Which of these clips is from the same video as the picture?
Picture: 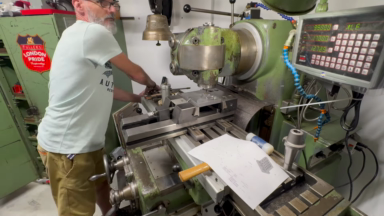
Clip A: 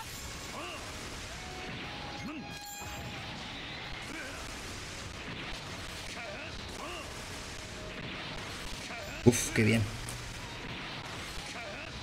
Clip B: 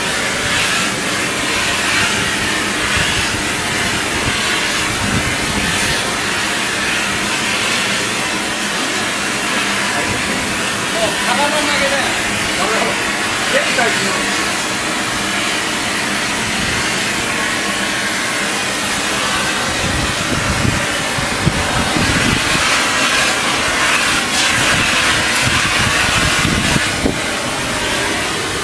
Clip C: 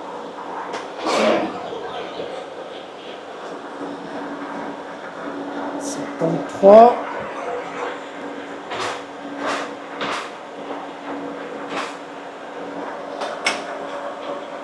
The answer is C